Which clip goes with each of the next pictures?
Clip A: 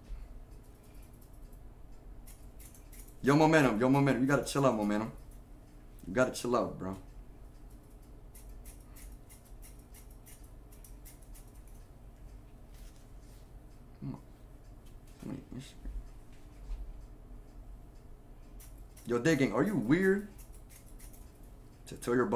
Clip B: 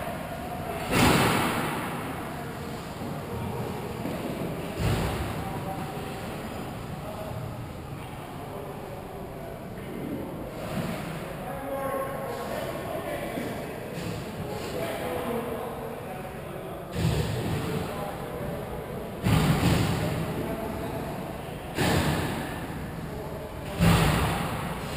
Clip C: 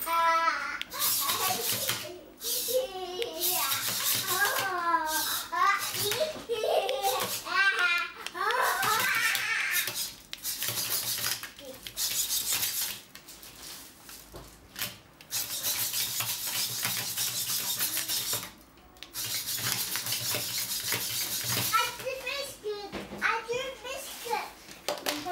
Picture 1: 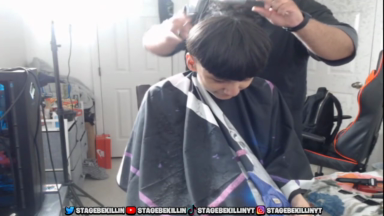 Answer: A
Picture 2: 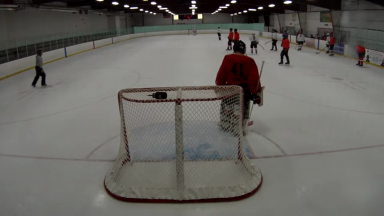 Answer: B